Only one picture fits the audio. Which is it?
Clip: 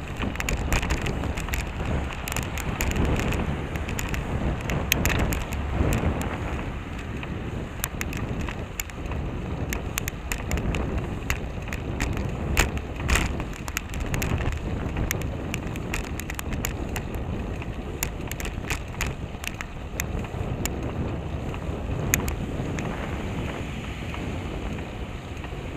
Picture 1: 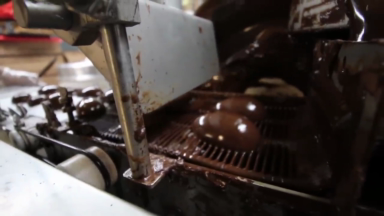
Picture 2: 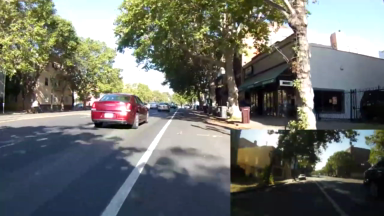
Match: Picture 2